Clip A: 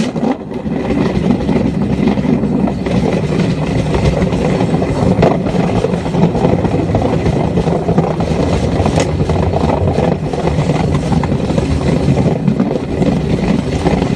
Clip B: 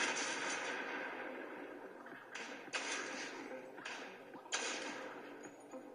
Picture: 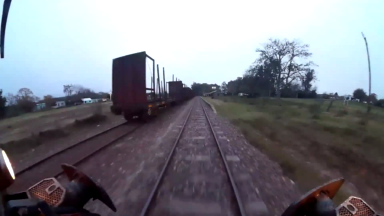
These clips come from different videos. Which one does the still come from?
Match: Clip A